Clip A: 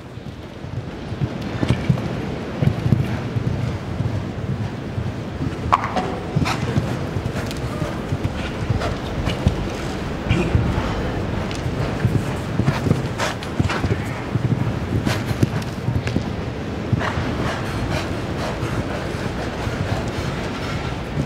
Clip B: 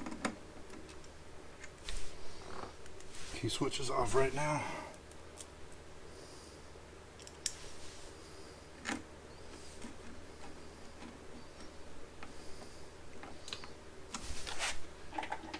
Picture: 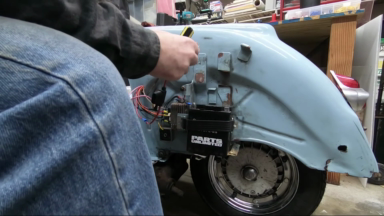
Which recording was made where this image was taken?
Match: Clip B